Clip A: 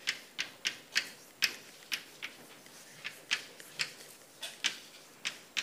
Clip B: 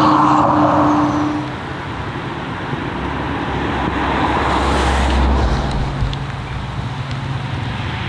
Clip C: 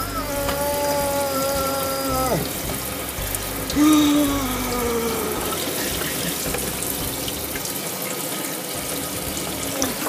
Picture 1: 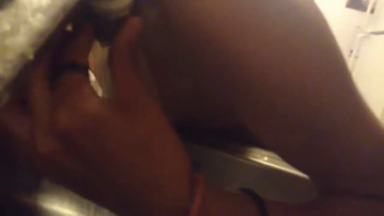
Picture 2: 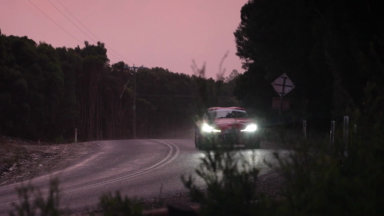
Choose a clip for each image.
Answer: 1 C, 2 B